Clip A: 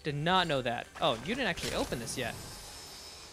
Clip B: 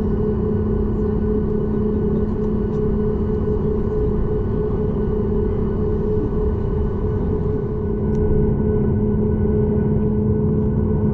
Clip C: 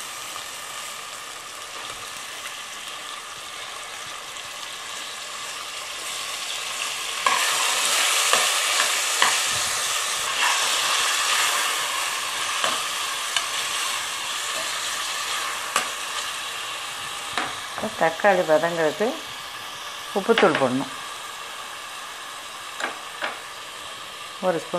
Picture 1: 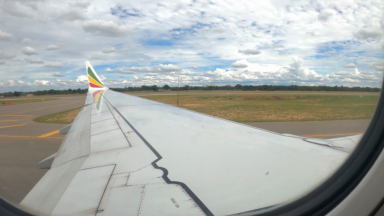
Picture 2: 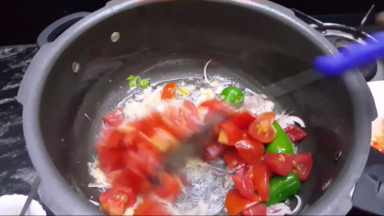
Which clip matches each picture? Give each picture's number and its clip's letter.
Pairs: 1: B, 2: C